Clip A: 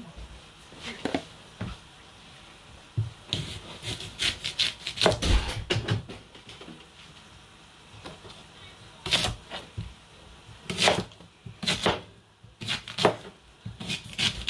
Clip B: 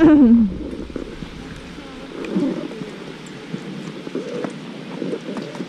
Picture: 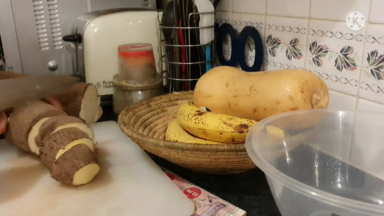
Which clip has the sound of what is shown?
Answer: A